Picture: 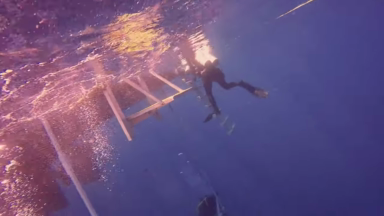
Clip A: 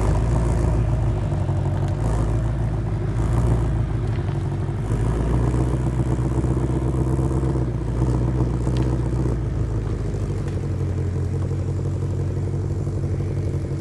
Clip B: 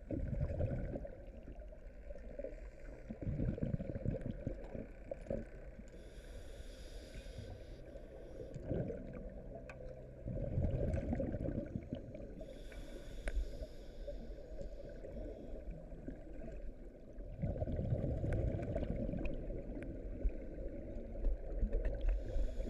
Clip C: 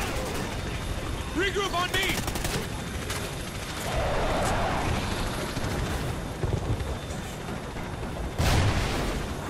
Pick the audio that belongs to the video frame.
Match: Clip B